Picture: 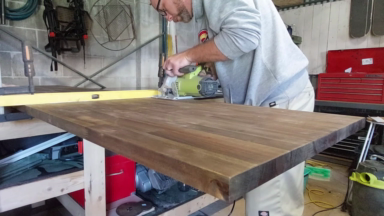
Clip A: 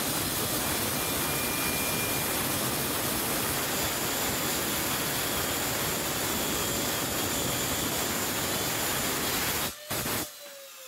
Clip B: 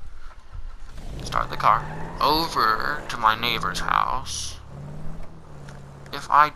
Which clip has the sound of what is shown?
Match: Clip A